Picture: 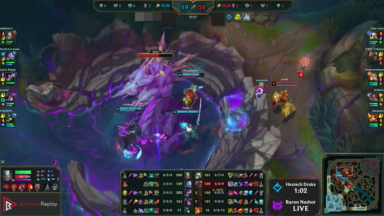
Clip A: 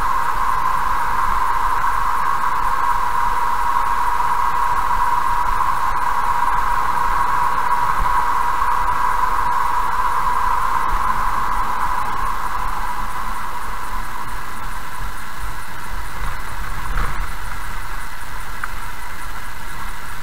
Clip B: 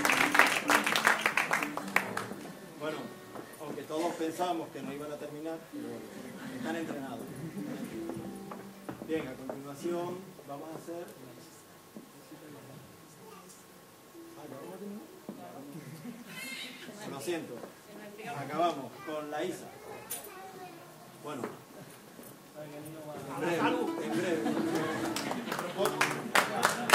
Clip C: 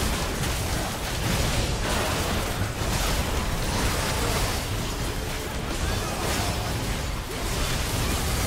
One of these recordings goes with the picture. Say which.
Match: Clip C